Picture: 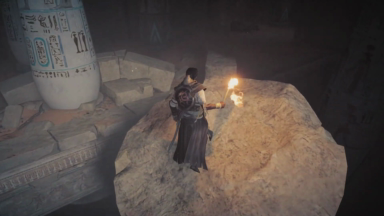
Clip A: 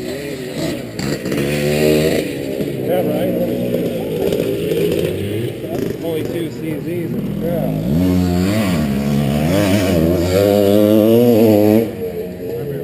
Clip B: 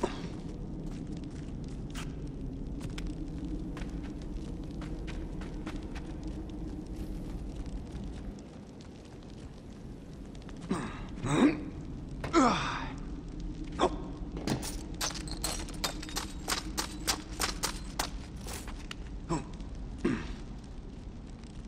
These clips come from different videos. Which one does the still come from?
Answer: B